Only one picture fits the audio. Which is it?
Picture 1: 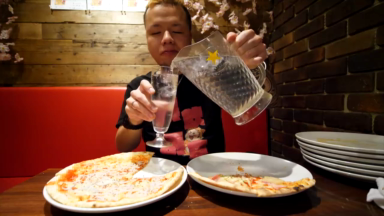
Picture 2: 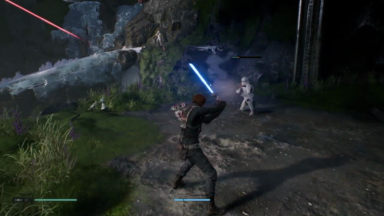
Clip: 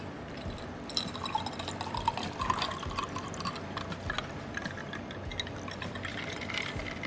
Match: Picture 1